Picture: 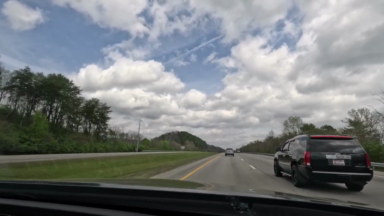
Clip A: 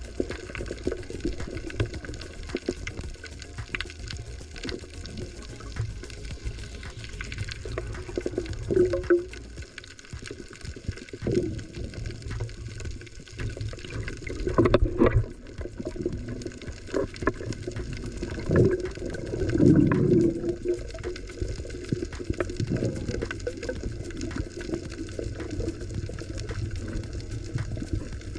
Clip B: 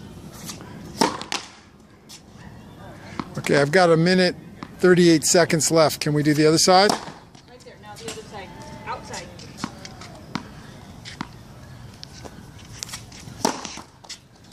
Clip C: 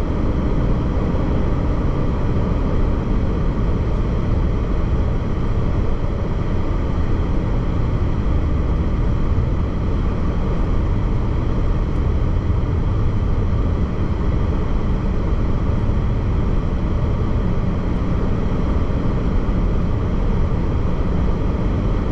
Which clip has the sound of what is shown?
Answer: C